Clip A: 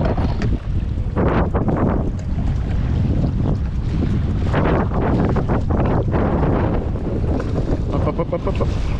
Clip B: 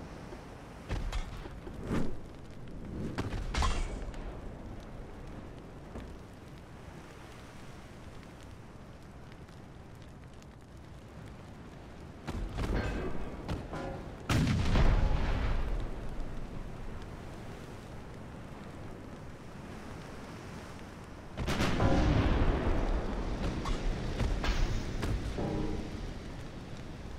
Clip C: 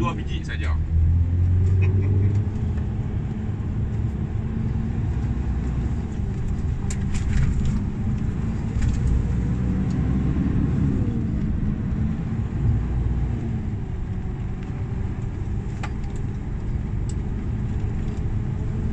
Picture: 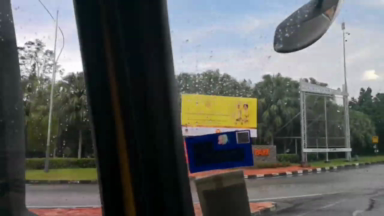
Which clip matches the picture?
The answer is C